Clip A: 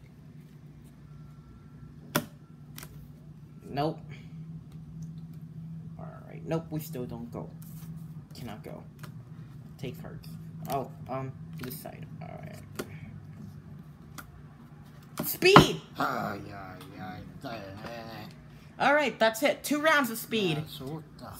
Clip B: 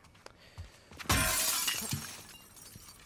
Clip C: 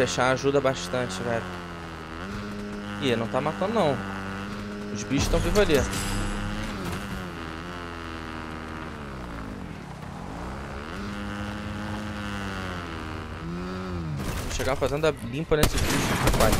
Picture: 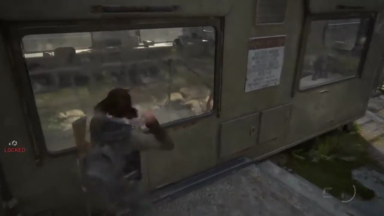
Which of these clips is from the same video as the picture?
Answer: B